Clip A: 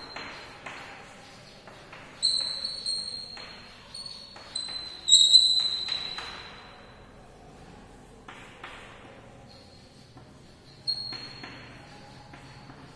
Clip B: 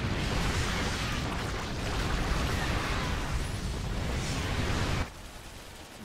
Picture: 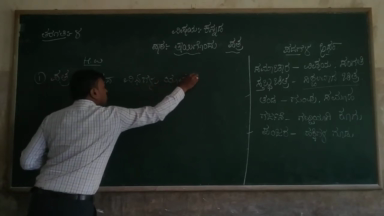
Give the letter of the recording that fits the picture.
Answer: A